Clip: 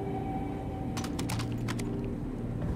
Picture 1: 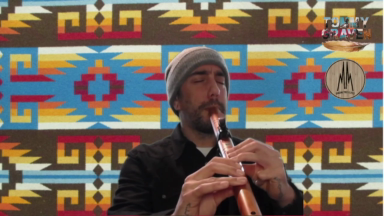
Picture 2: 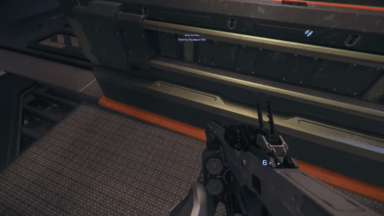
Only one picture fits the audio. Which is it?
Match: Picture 2